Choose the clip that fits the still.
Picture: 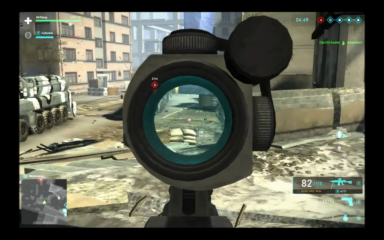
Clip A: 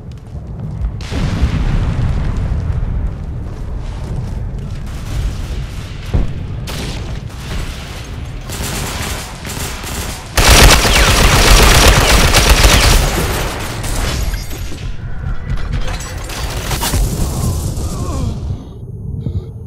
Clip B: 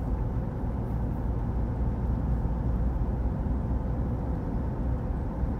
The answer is A